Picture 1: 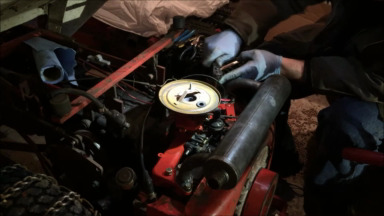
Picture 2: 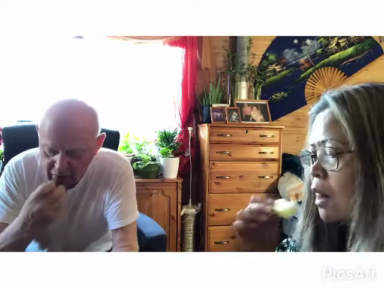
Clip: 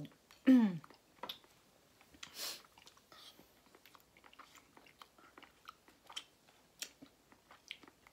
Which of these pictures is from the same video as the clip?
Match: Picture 2